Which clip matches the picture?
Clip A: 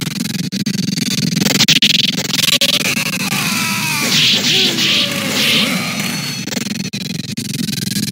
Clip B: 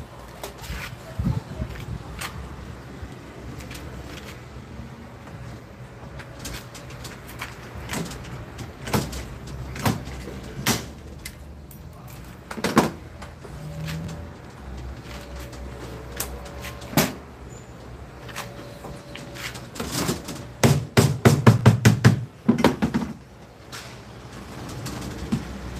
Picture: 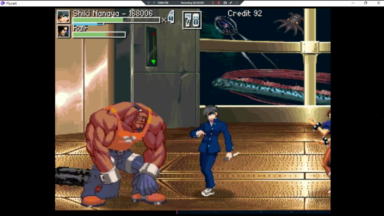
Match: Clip A